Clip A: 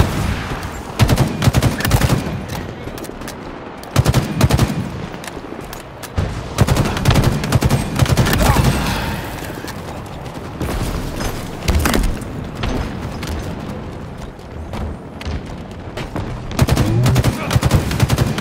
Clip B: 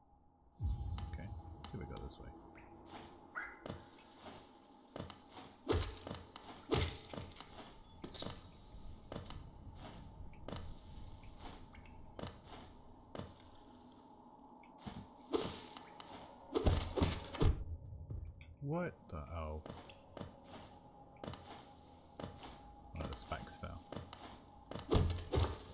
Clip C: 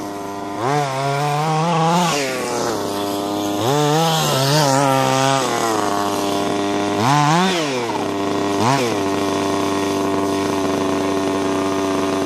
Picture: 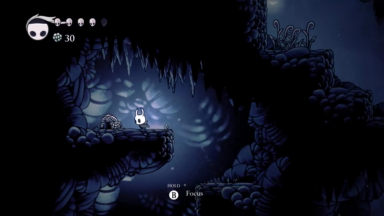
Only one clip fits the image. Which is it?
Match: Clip B